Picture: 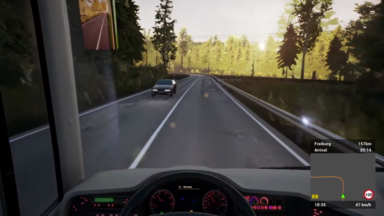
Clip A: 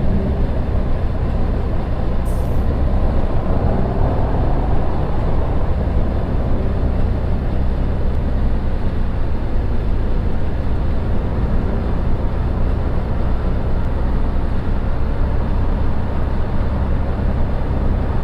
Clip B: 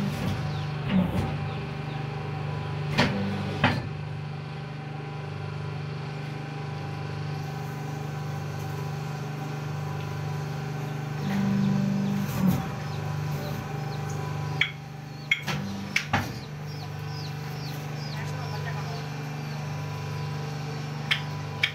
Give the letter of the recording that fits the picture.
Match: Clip A